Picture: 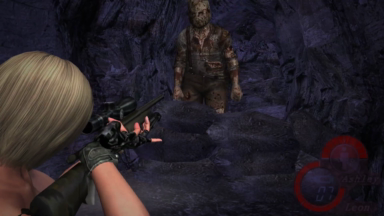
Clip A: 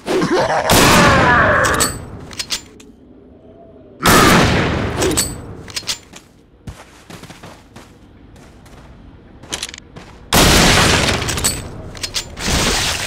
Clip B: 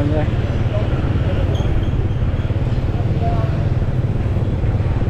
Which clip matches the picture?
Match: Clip A